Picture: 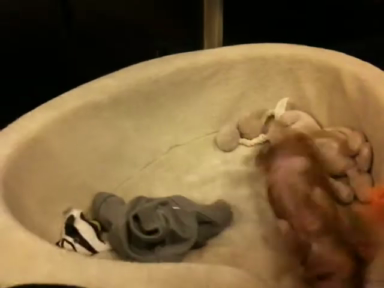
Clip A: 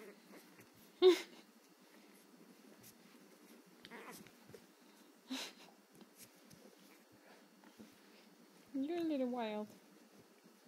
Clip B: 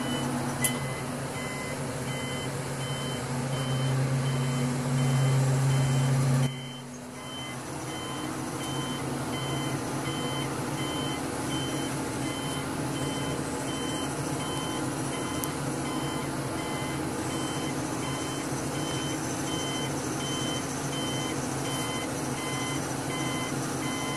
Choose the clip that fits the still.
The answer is A